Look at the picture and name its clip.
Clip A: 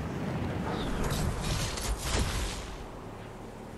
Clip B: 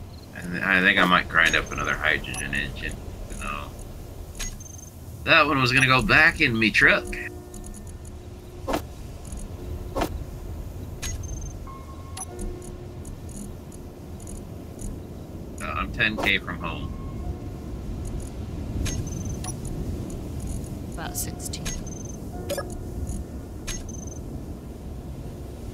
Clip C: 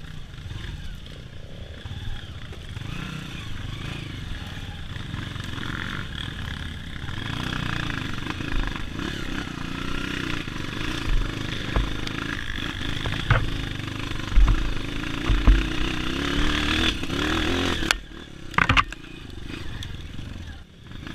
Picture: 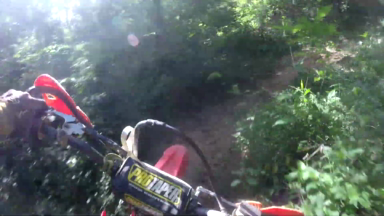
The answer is C